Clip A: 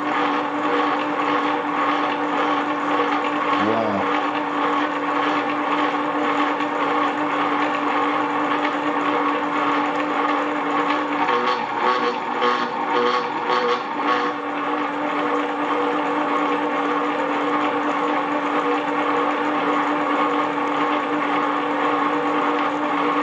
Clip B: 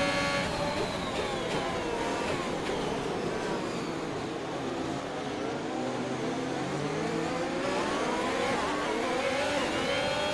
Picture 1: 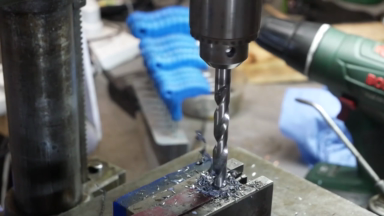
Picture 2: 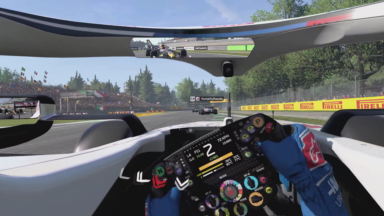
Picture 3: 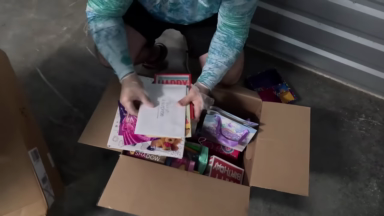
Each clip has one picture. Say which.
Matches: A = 1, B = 2